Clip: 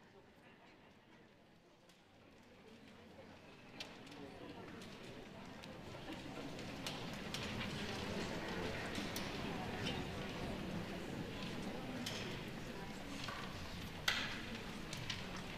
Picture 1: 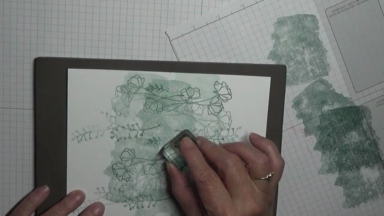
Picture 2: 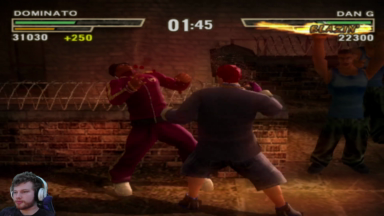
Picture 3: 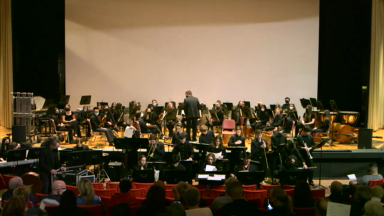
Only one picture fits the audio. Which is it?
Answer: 3